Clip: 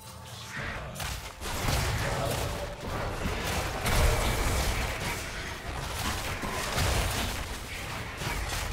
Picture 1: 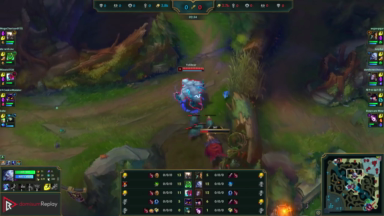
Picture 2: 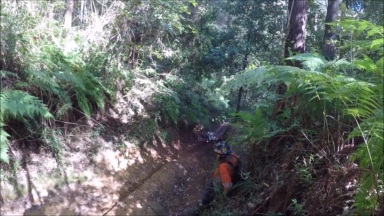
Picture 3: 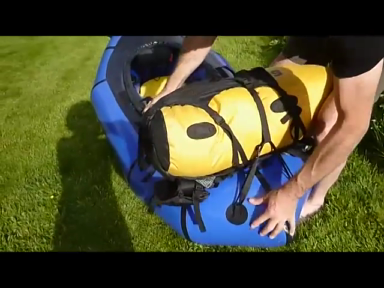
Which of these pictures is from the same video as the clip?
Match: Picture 1